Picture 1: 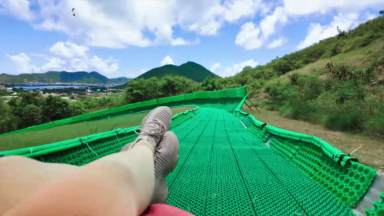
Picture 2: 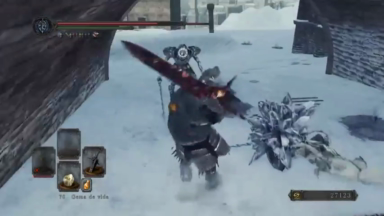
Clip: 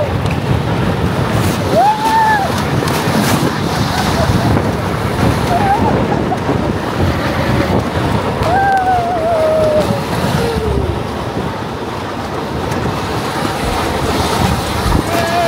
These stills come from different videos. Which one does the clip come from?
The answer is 1